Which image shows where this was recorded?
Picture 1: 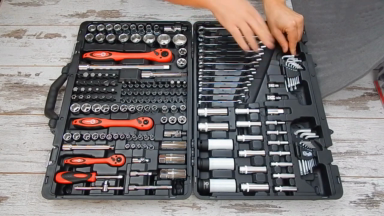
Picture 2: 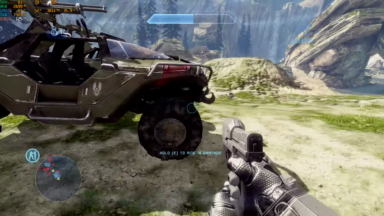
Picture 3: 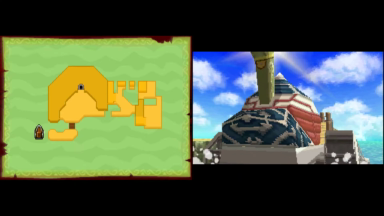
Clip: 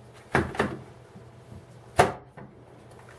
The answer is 1